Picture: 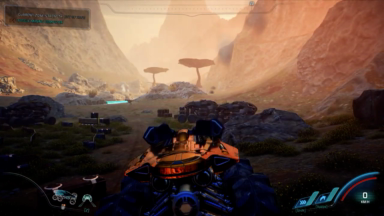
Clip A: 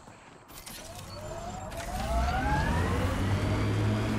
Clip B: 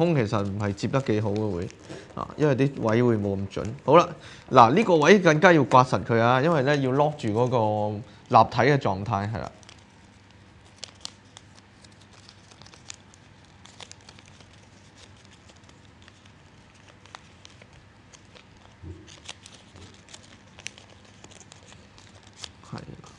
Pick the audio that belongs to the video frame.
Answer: A